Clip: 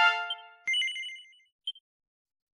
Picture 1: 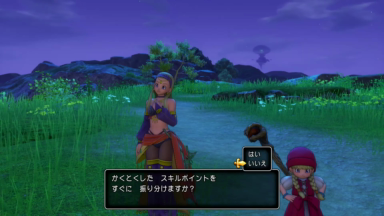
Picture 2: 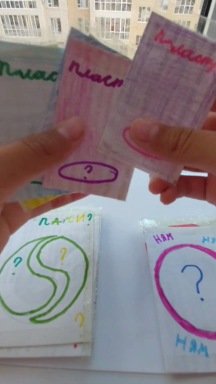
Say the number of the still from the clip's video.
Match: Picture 1